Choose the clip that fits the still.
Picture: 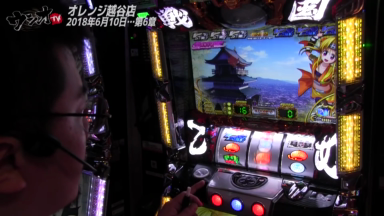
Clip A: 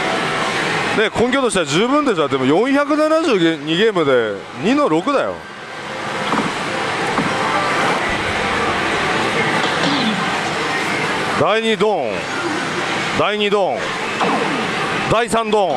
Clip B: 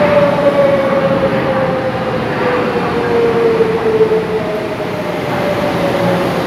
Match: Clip A